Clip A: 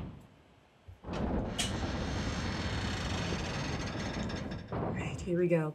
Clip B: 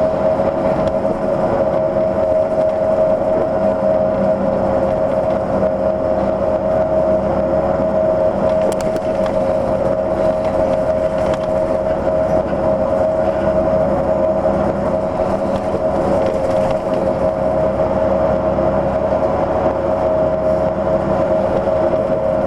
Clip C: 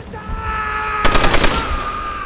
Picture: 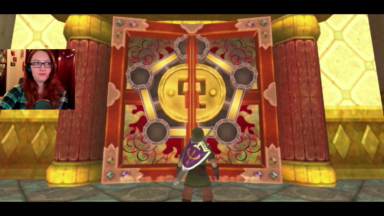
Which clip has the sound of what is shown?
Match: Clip A